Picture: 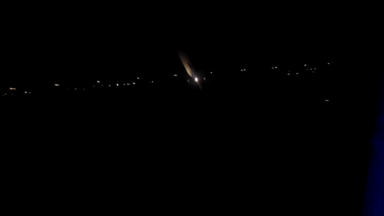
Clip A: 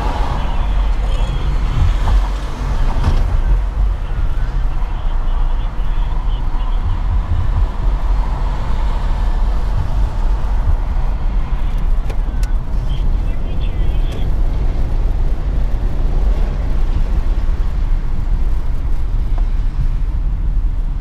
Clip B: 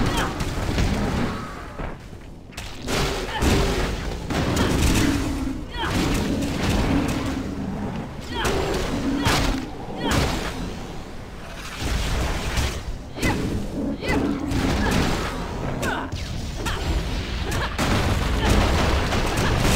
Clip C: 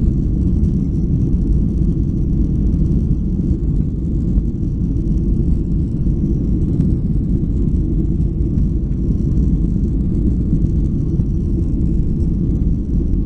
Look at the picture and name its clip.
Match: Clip C